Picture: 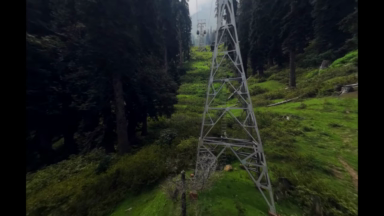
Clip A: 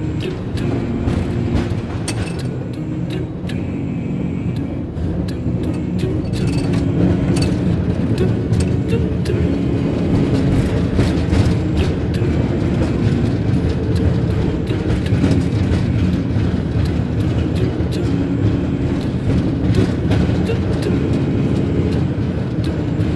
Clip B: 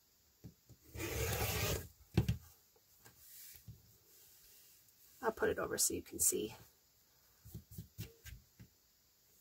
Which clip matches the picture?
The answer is A